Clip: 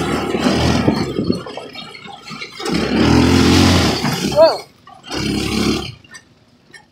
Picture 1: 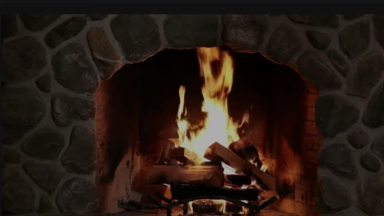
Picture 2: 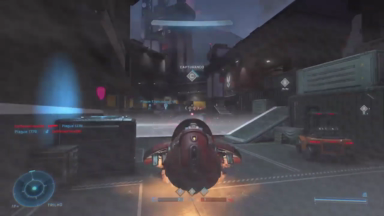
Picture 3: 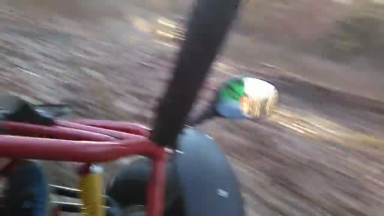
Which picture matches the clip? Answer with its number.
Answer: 3